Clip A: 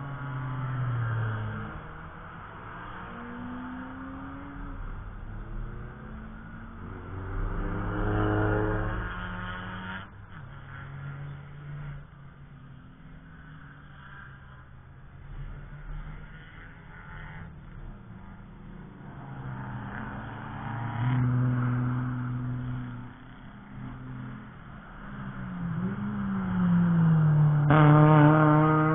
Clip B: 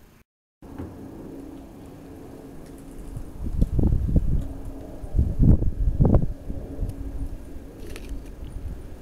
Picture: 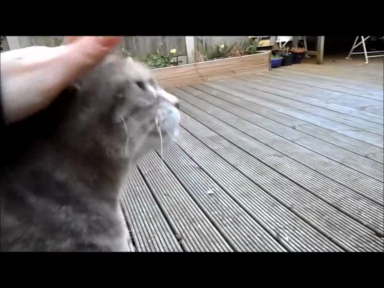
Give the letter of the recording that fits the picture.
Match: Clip B